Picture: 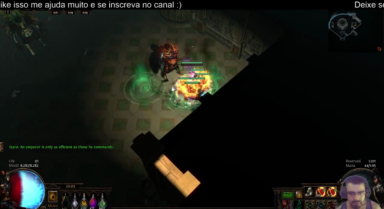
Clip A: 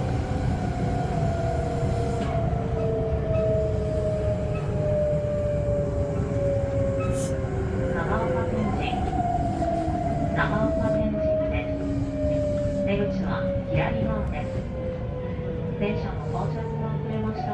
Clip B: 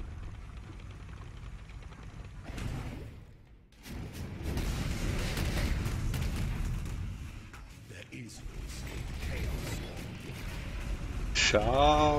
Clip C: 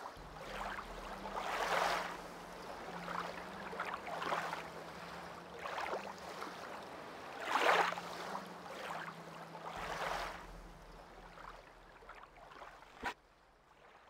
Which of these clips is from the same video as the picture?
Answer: B